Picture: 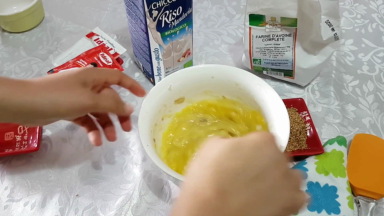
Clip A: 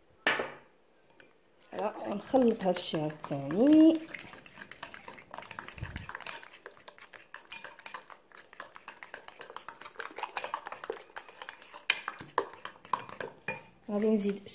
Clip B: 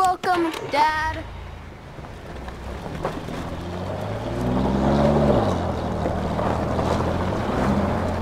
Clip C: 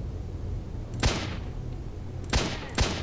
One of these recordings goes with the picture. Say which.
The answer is A